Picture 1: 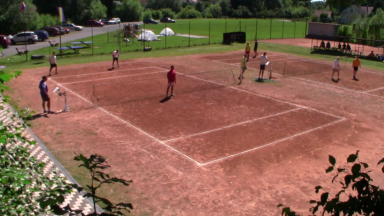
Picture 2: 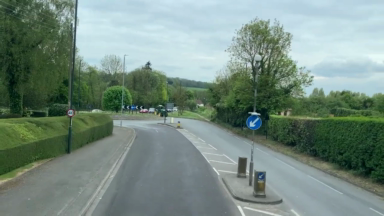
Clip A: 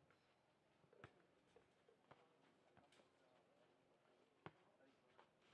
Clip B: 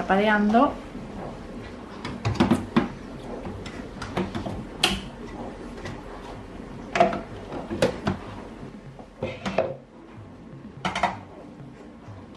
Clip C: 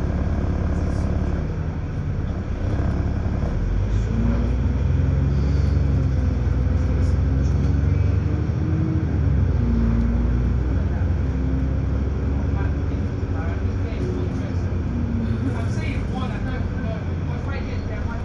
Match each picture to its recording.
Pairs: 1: A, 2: C